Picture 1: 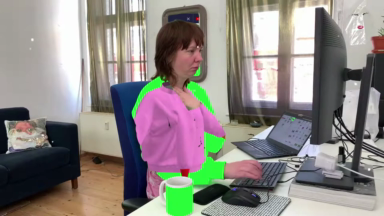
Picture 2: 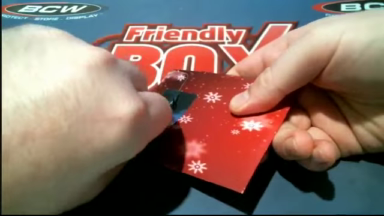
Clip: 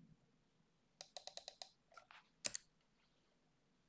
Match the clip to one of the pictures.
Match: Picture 1